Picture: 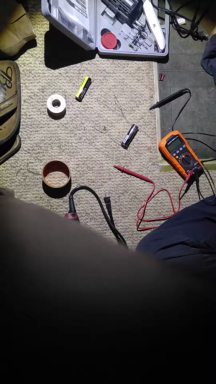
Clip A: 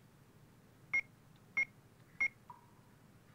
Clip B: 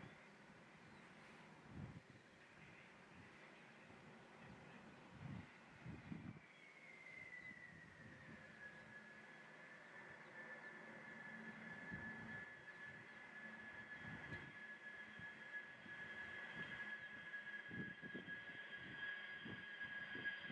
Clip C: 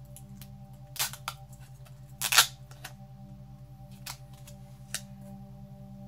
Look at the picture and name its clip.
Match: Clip C